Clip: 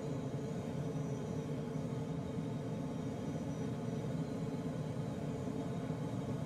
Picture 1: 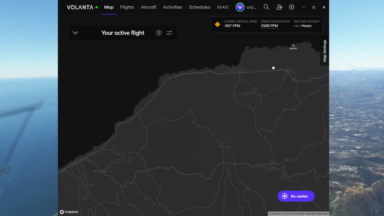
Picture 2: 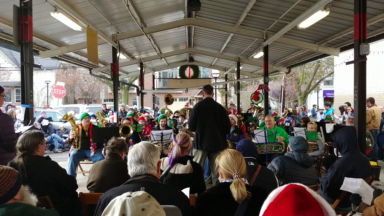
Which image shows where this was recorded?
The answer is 1